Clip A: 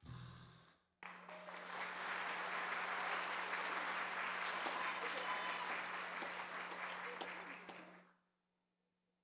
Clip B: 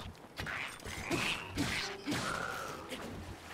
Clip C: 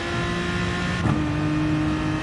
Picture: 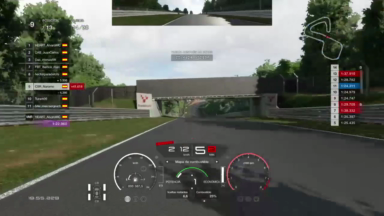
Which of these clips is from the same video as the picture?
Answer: C